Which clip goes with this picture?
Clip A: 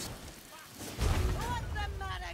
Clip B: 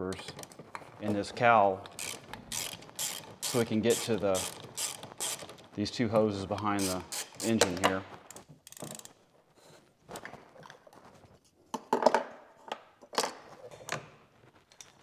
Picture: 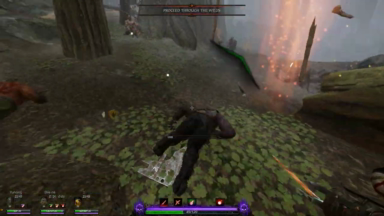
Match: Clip A